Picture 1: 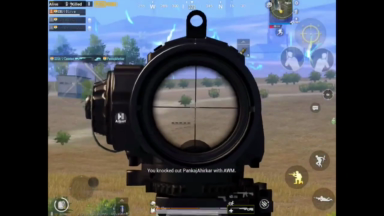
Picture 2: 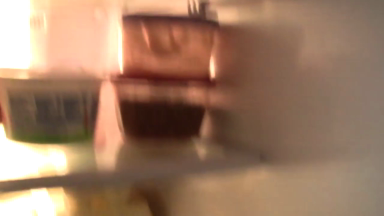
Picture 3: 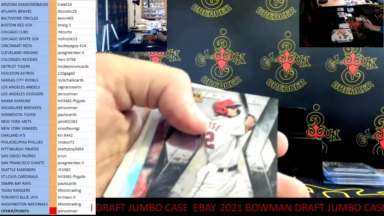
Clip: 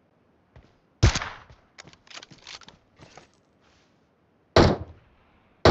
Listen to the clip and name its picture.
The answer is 1